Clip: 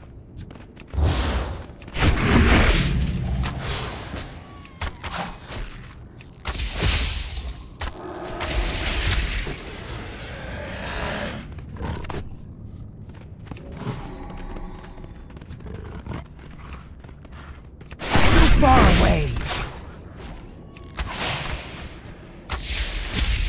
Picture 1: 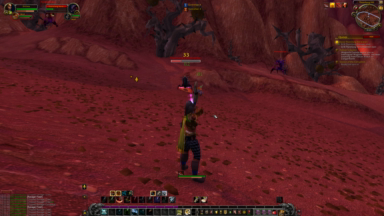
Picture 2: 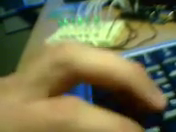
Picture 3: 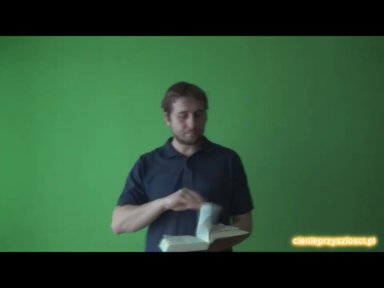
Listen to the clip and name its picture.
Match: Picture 1